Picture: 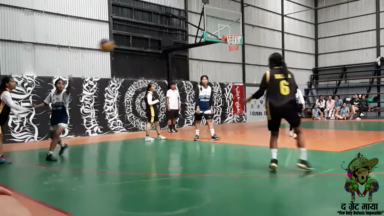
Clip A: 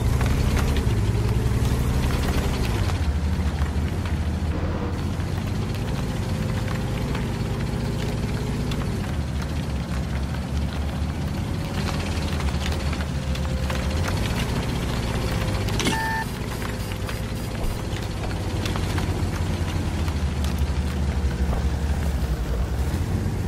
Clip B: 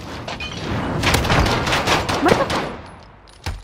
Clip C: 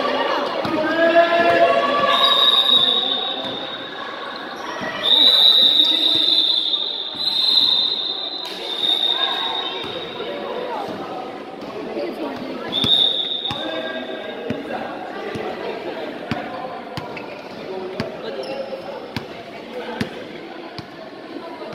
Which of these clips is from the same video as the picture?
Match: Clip C